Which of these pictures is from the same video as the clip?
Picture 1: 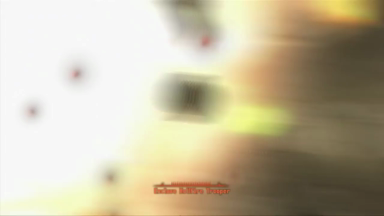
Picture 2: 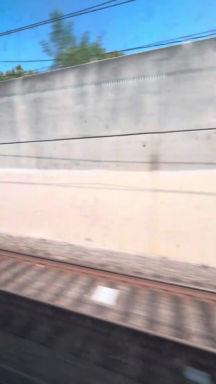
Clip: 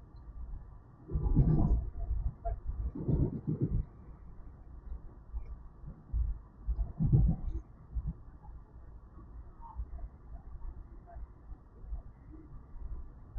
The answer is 2